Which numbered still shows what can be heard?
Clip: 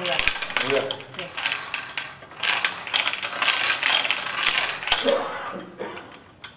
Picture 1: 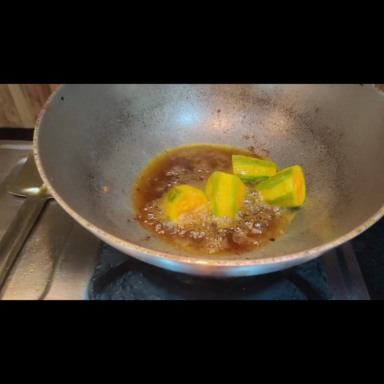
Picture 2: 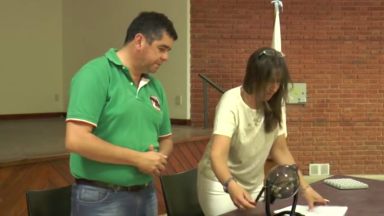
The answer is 2